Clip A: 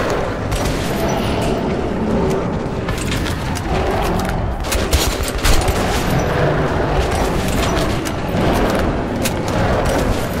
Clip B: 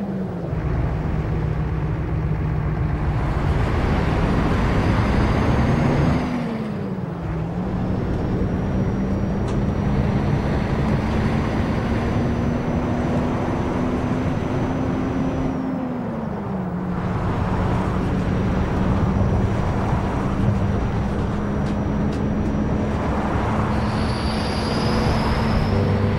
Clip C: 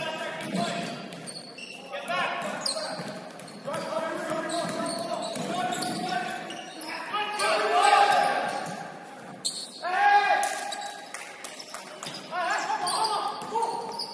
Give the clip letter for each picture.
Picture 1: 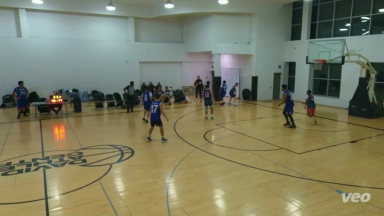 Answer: C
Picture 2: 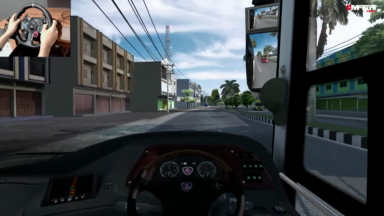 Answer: B